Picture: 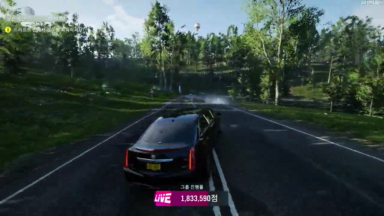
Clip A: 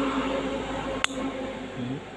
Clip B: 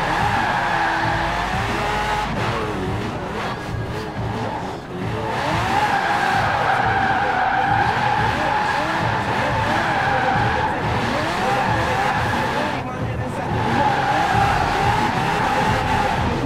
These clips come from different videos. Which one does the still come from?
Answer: B